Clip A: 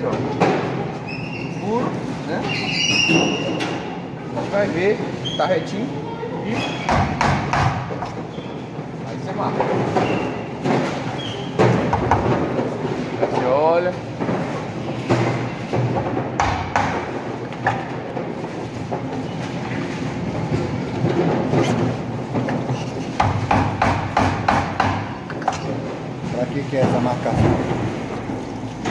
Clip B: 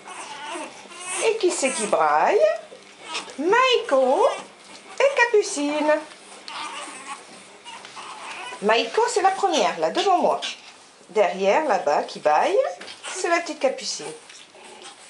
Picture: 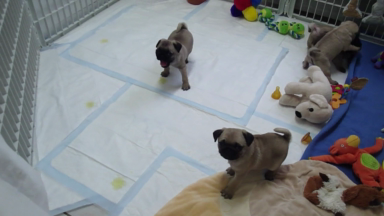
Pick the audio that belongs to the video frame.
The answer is B